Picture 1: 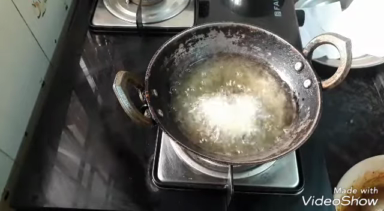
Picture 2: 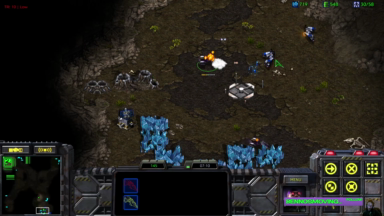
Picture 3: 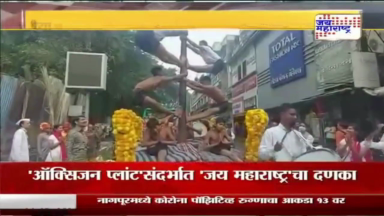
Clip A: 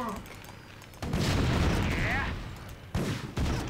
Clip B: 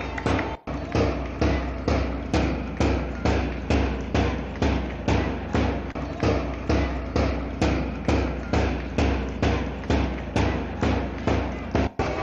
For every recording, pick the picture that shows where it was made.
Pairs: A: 2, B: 3